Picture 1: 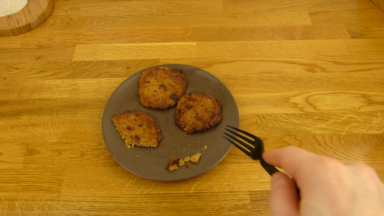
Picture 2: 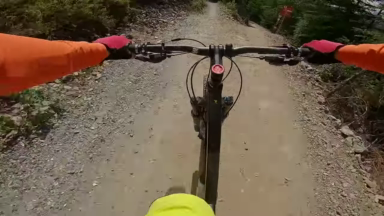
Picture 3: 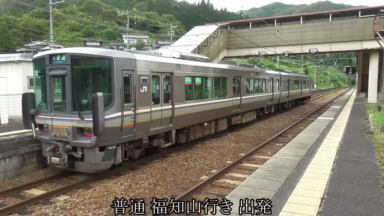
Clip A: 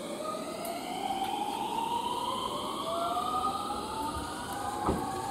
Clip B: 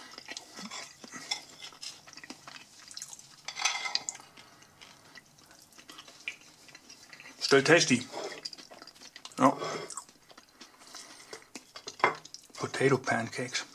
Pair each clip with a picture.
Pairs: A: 3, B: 1